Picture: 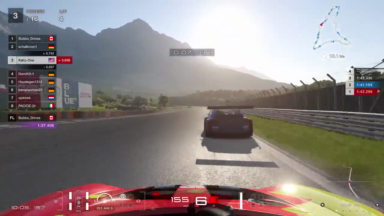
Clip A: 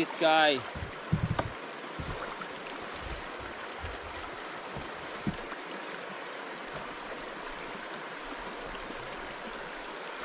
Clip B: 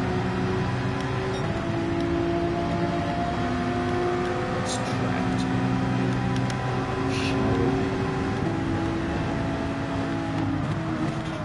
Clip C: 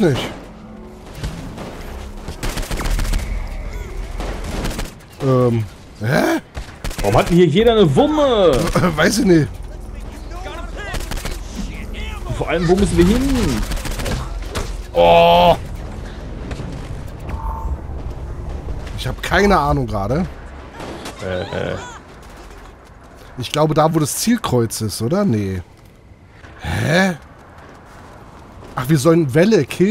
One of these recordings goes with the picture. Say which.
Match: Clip B